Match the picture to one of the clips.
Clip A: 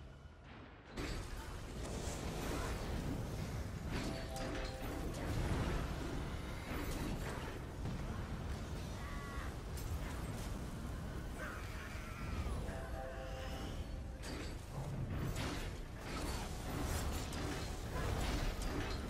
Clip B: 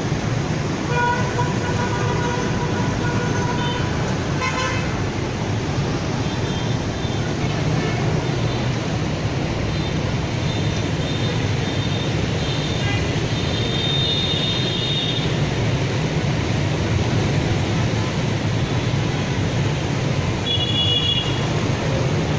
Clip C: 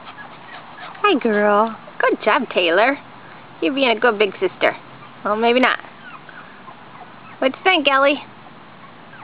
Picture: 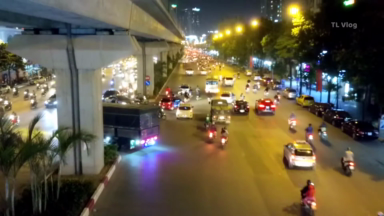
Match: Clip B